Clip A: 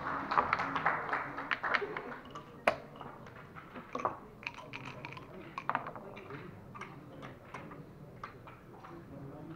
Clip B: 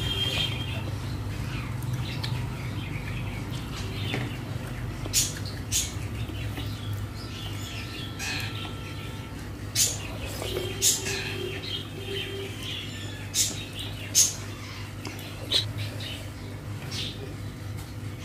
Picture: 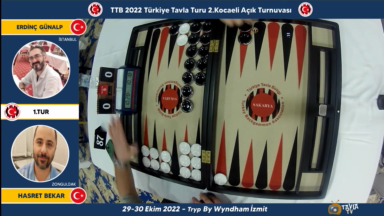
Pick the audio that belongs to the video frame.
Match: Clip A